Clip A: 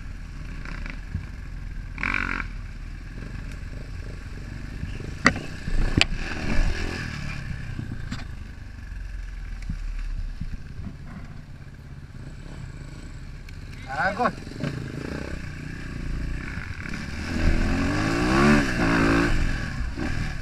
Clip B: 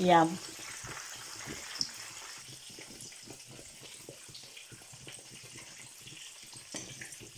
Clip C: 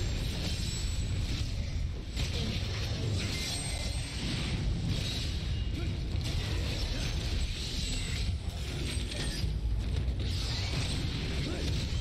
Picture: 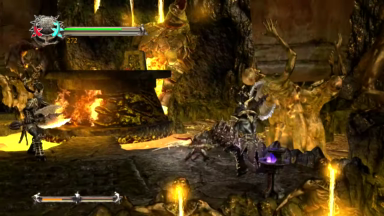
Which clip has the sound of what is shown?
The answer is C